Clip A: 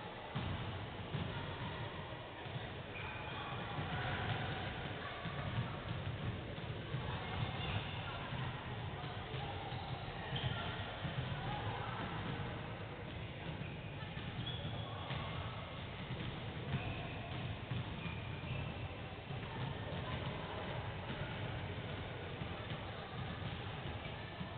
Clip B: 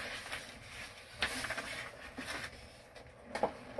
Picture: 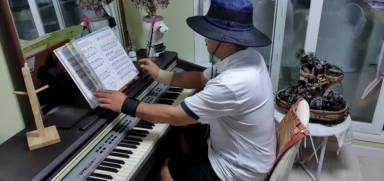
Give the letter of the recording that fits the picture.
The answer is B